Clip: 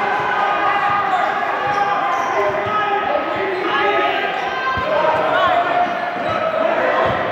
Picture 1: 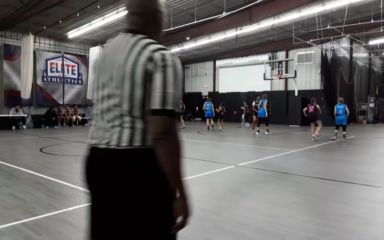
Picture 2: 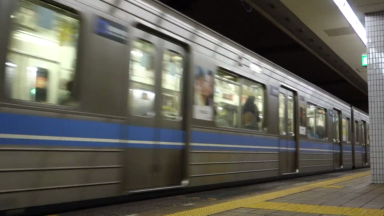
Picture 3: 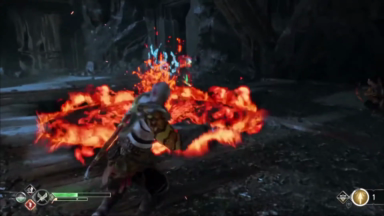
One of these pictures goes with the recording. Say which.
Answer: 1